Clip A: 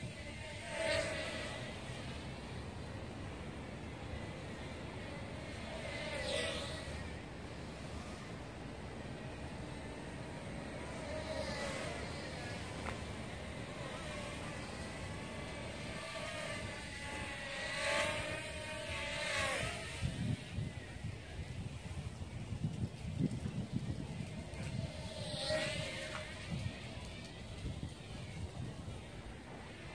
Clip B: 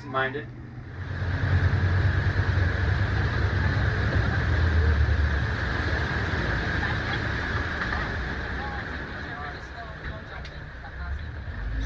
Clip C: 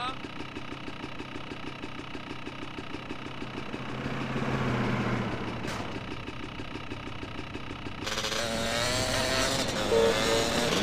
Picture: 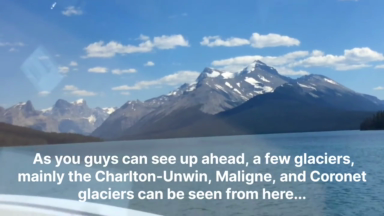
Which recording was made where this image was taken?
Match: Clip B